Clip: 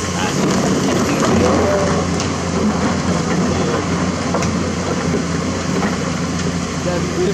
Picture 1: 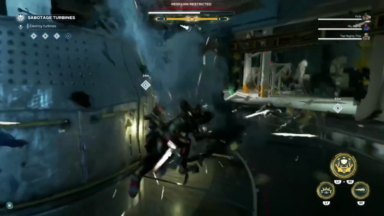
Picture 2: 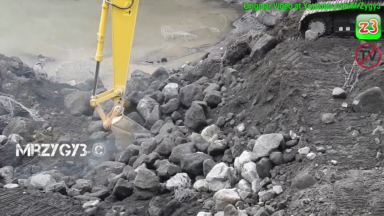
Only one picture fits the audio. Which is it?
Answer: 2